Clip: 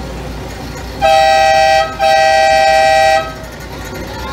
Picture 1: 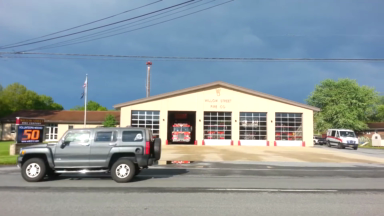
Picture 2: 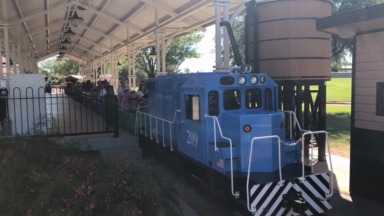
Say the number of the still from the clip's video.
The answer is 2